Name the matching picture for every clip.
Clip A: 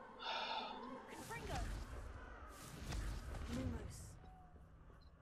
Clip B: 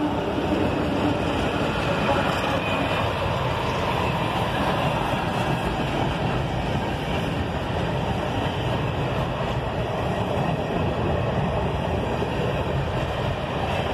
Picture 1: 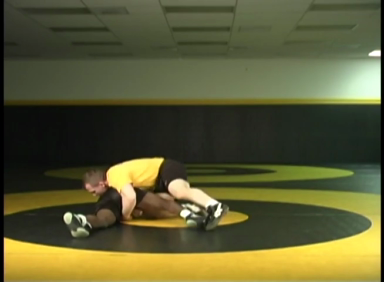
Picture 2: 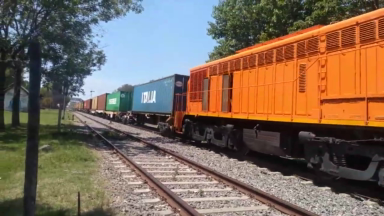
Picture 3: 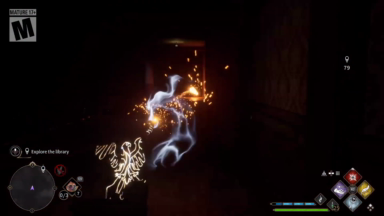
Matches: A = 3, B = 2